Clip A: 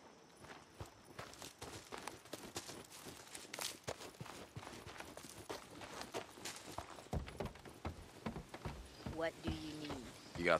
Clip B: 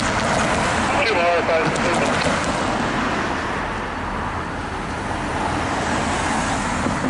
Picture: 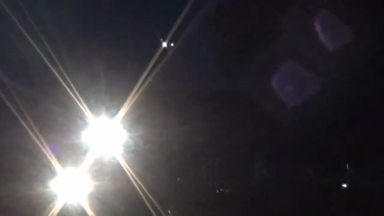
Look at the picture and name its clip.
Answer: B